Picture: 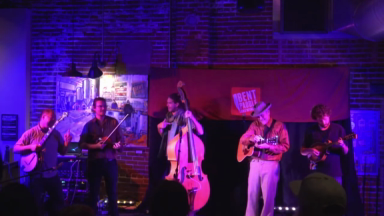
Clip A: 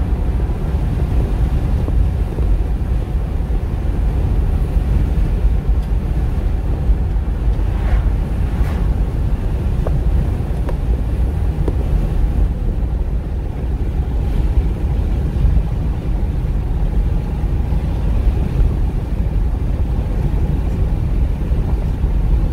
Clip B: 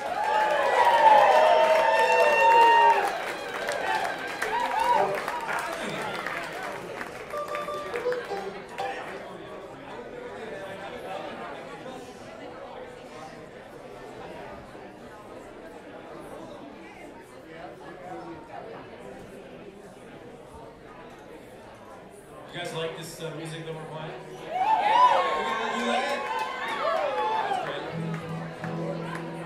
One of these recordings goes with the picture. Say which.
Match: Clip B